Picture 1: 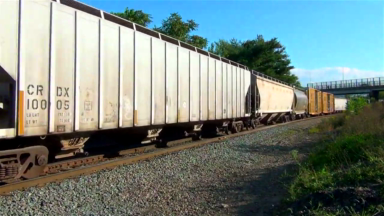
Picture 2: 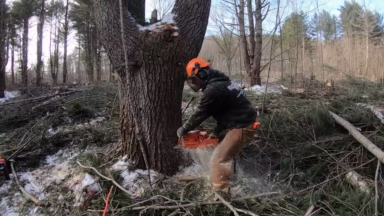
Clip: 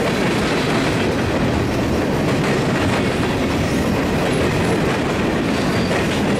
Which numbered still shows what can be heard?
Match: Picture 1